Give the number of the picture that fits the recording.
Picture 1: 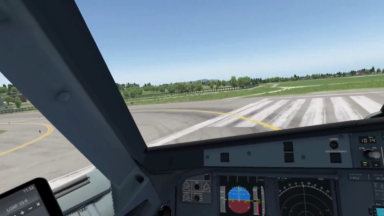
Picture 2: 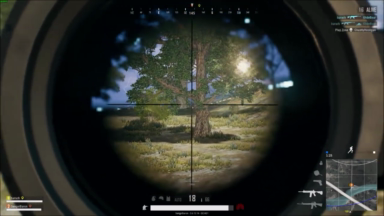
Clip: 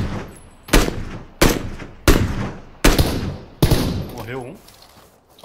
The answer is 2